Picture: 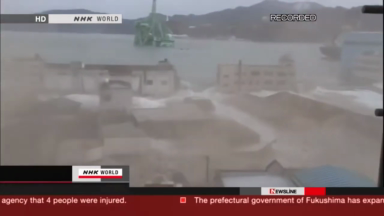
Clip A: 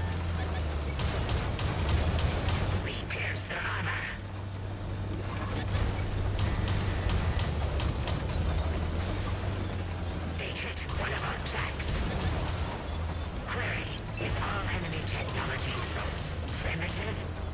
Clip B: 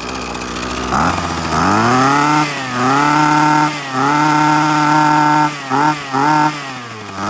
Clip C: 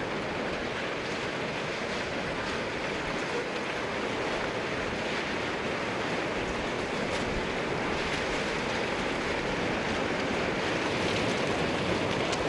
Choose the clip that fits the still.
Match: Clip C